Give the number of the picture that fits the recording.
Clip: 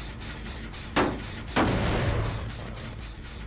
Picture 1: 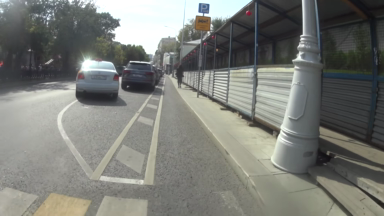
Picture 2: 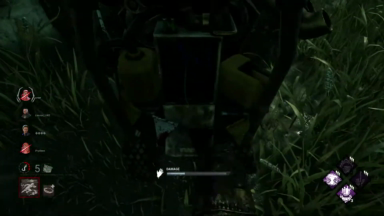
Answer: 2